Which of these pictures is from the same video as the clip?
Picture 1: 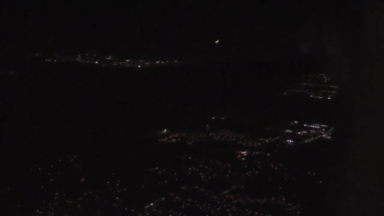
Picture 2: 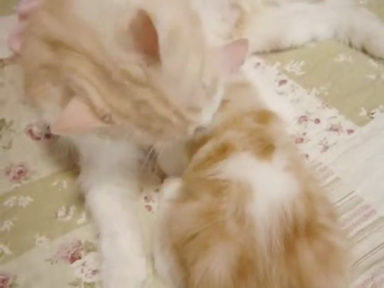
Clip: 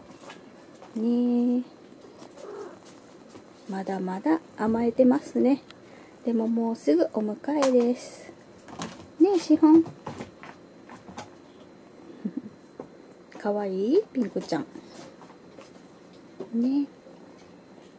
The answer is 2